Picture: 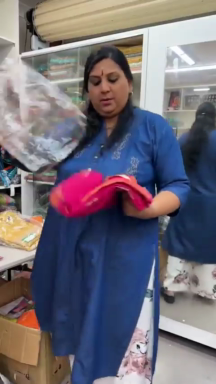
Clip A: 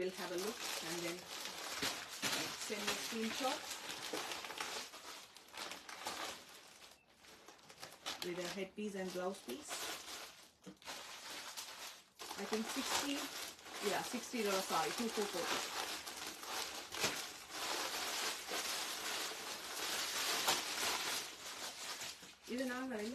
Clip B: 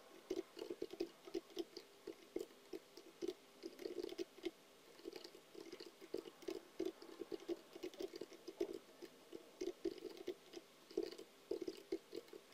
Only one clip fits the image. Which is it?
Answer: A